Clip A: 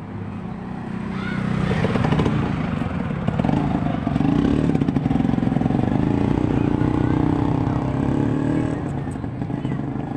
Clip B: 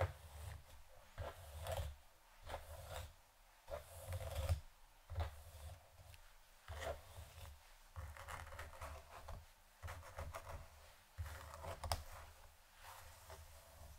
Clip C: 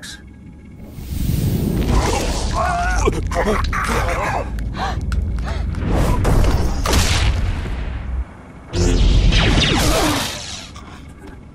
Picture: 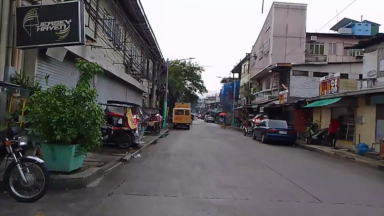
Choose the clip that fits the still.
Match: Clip A